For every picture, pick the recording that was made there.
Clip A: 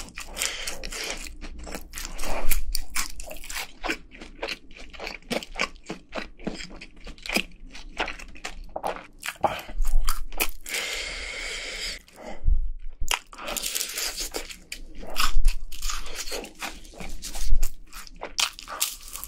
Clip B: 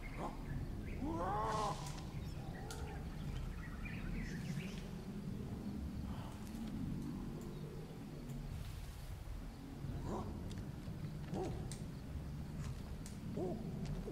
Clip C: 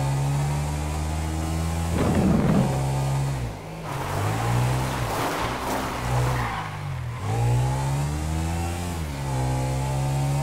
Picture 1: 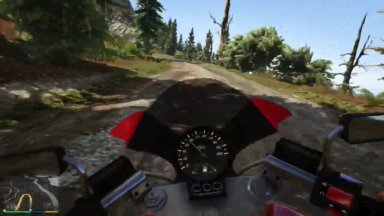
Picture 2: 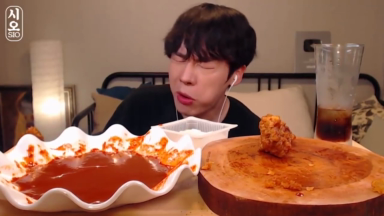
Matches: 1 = C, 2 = A